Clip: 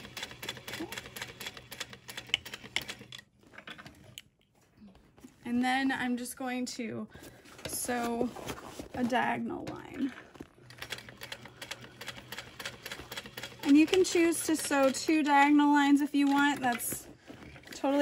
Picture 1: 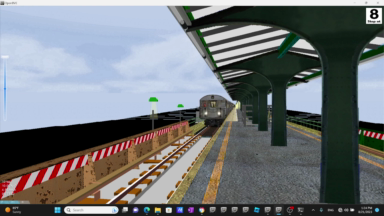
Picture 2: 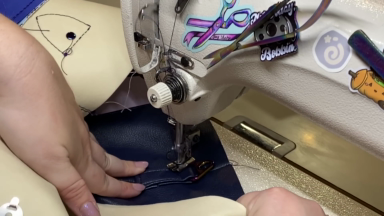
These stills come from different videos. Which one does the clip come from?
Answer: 2